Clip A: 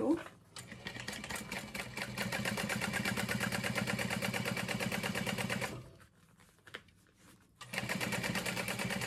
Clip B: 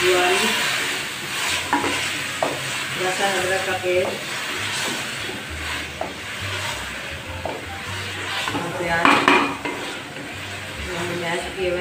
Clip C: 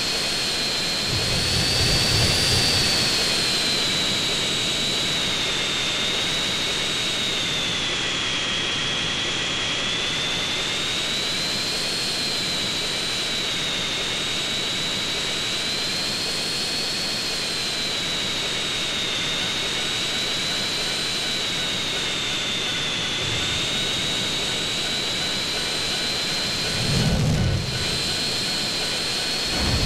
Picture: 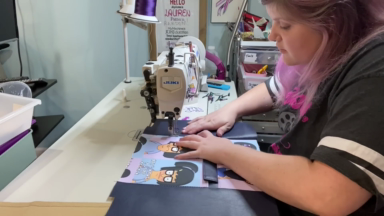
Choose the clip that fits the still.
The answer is A